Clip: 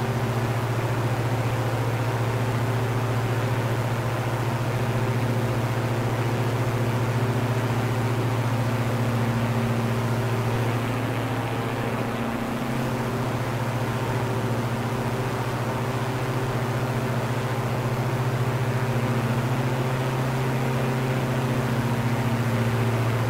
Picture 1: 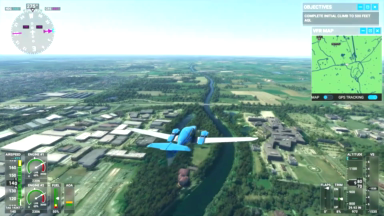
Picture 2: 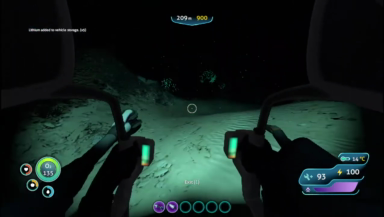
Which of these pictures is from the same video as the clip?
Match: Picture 1